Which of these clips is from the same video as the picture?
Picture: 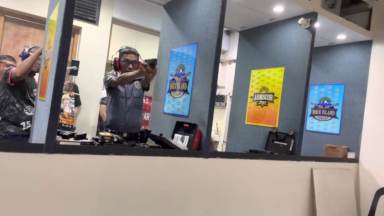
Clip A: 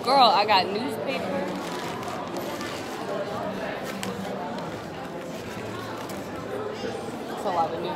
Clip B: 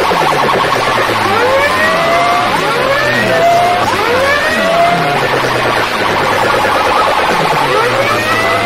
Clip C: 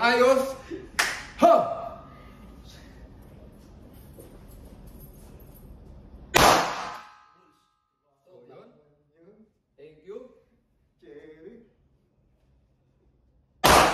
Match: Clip C